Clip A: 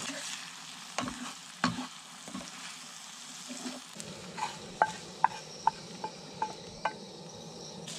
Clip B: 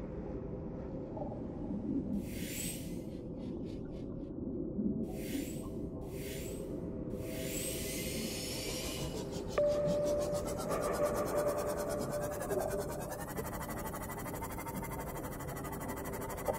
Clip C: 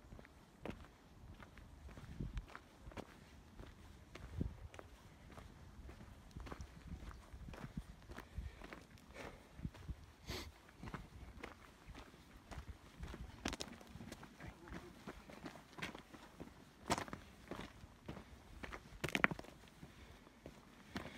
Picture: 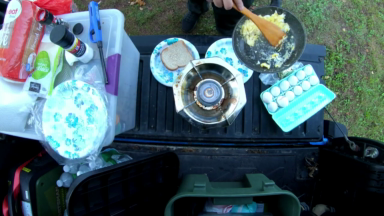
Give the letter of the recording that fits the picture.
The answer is A